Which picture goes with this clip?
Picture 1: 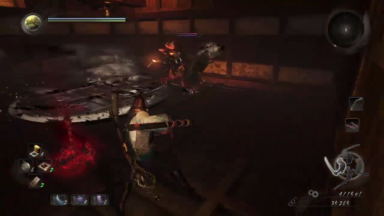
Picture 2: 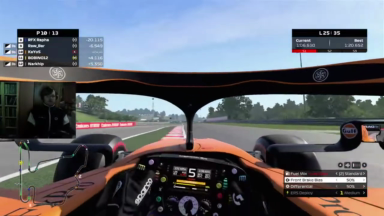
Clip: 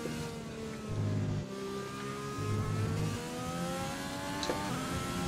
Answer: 2